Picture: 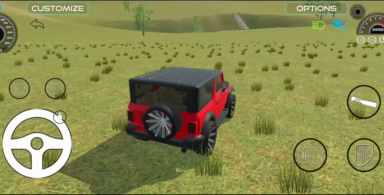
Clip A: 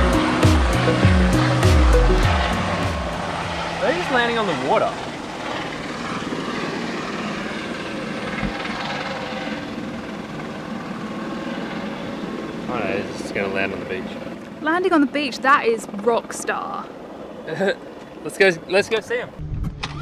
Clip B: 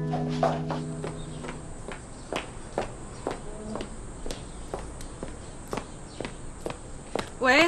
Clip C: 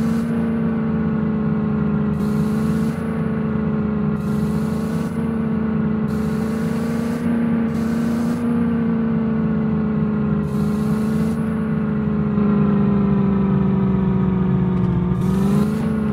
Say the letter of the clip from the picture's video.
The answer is C